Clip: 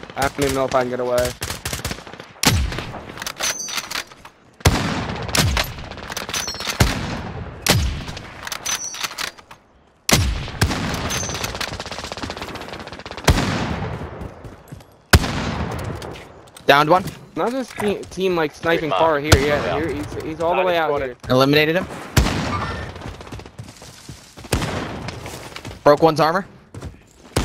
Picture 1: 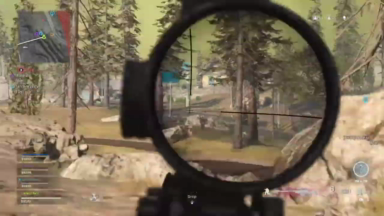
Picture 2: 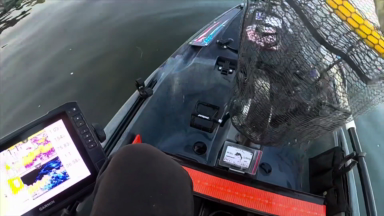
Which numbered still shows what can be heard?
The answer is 1